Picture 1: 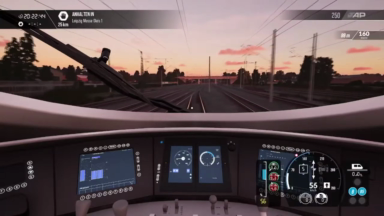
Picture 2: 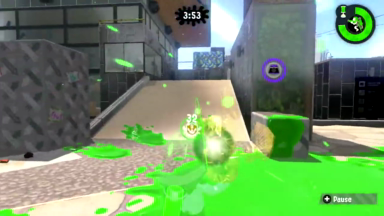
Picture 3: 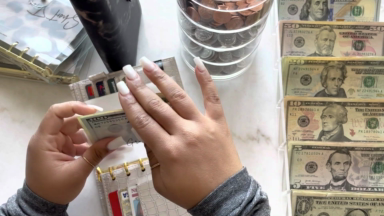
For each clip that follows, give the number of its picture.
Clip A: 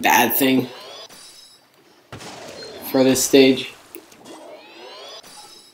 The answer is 2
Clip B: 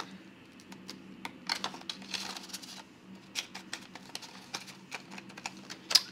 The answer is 3